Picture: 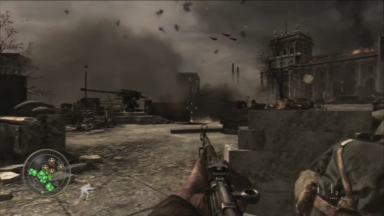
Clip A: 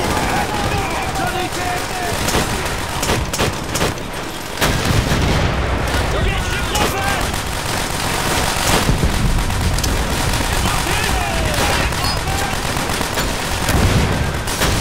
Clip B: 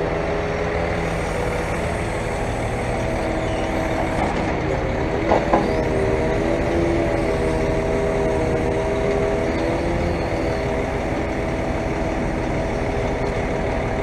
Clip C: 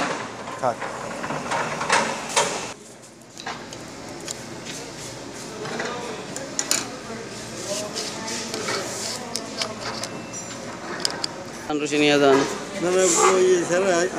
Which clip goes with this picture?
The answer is A